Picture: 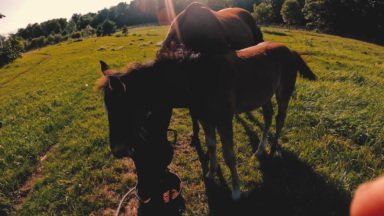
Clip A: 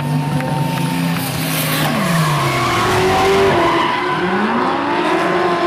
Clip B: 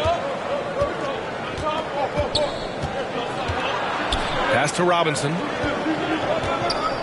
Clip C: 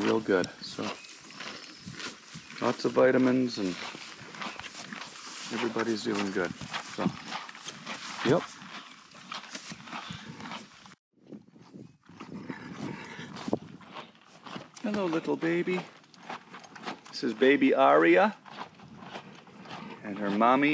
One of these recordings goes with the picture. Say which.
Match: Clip C